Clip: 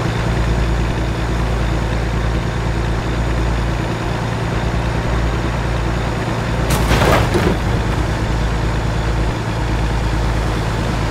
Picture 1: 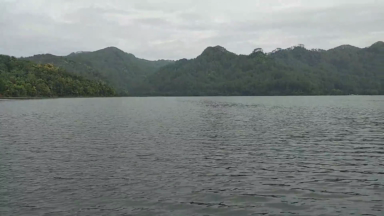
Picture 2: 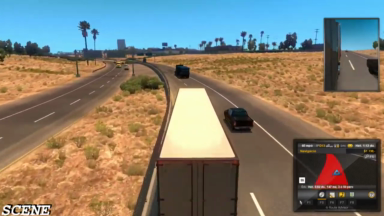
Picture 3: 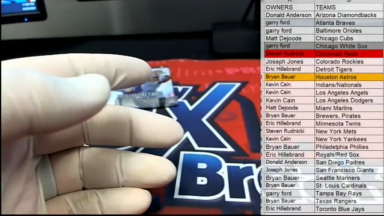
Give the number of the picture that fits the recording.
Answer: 2